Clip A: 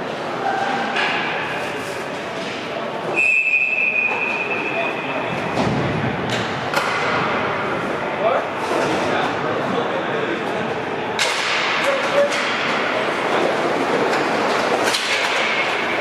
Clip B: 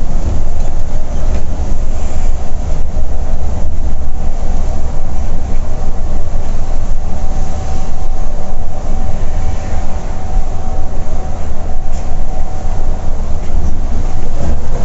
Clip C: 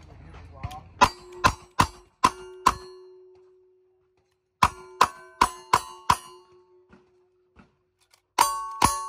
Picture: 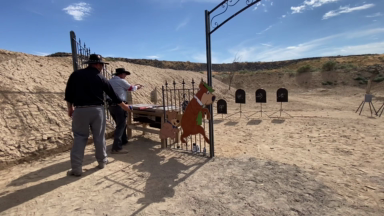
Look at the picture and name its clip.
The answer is C